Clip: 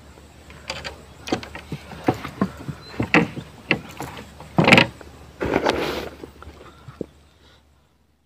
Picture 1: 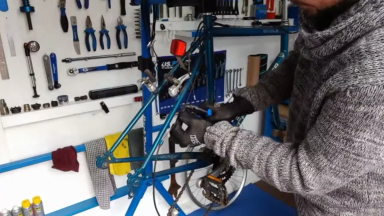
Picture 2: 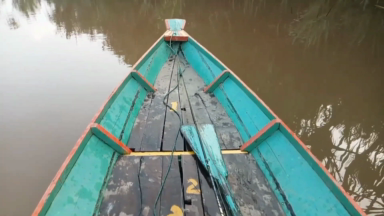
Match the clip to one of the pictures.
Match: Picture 2